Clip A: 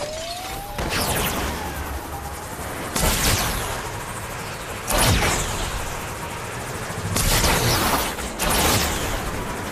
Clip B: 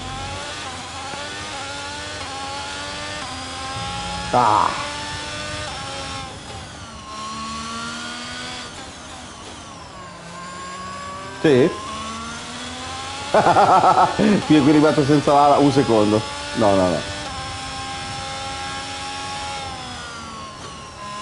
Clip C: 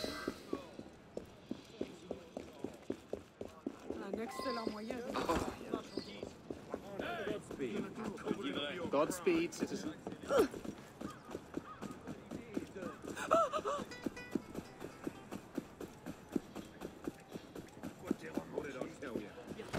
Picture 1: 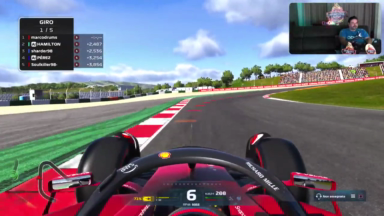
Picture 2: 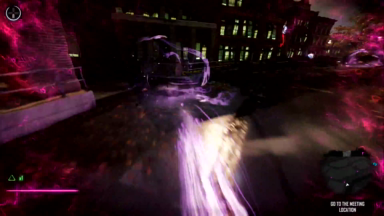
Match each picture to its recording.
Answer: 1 B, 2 A